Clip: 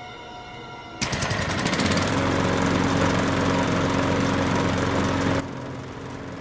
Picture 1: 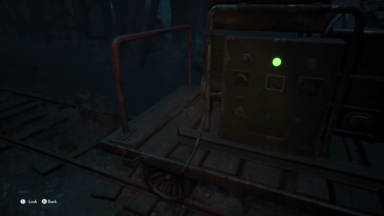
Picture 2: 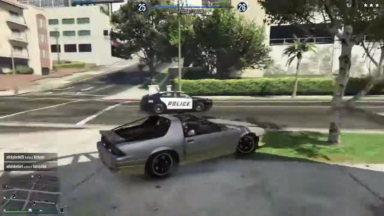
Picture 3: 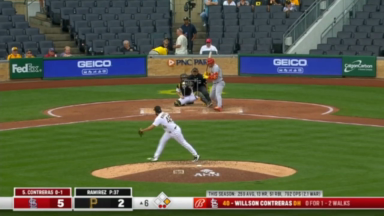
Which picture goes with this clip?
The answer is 1